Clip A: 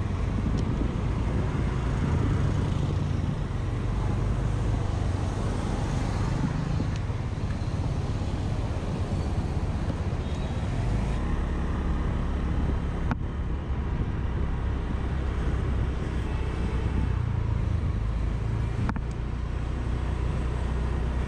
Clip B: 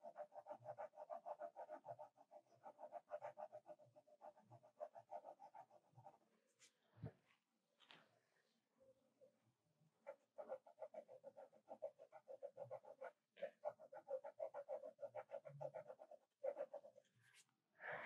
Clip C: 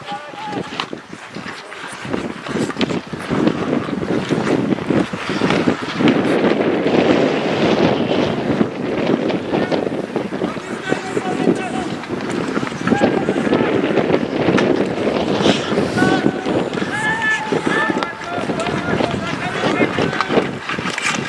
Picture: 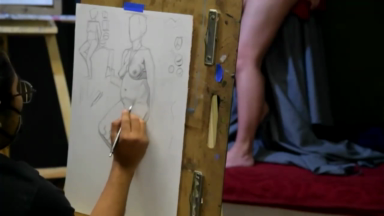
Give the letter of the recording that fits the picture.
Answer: B